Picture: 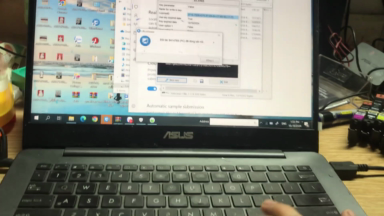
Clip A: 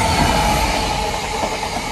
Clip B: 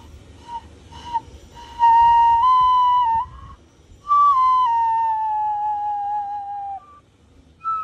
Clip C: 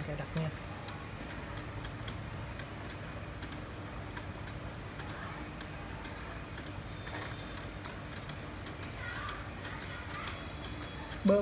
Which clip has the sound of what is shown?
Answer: C